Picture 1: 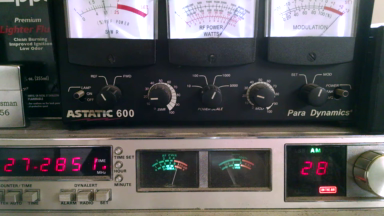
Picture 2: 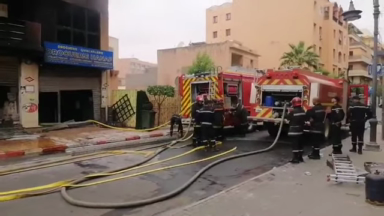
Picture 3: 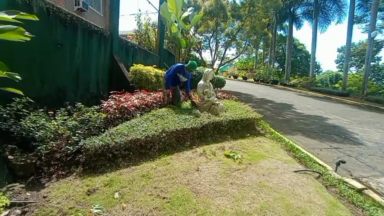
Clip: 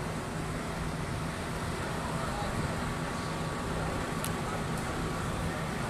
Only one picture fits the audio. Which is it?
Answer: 2